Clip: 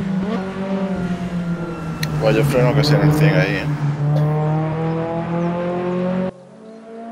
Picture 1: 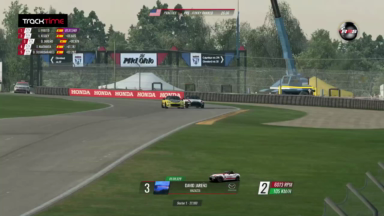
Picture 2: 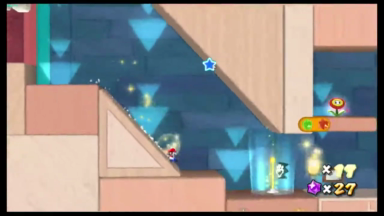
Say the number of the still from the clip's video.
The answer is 1